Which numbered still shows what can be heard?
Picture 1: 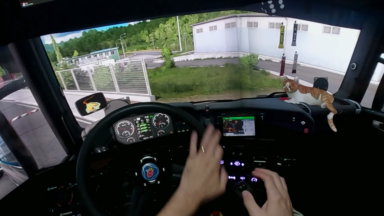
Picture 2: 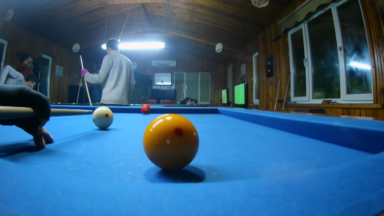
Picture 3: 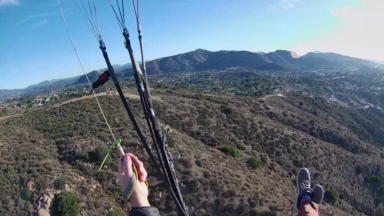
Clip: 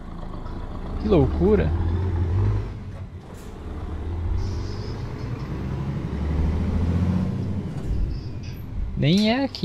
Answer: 1